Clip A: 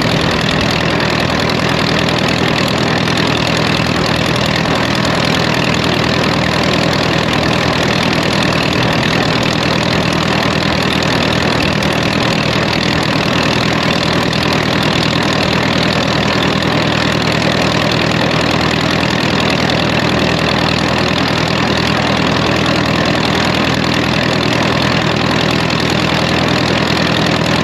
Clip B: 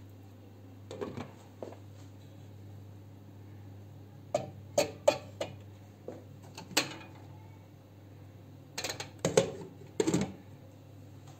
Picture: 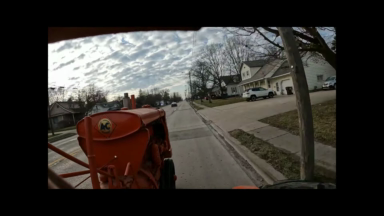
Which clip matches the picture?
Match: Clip A